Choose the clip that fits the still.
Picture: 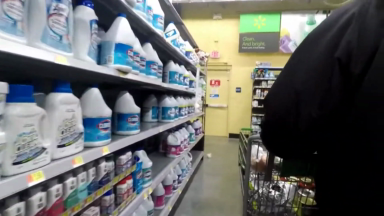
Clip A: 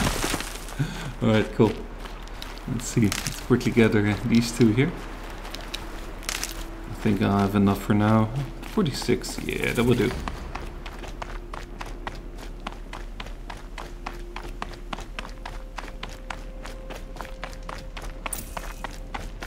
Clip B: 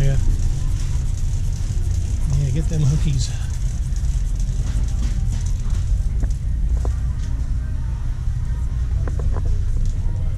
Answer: B